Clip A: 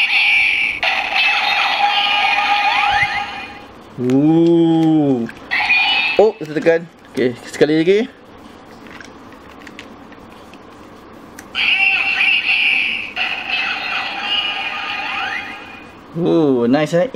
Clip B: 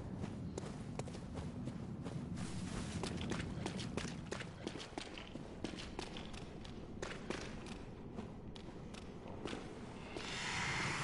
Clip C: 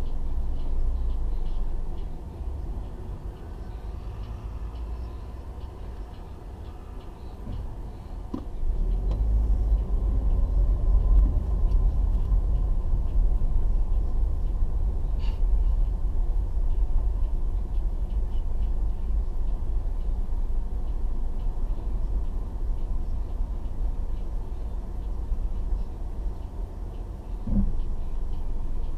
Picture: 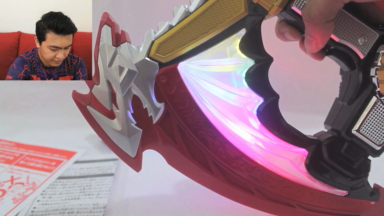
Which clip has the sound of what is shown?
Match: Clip A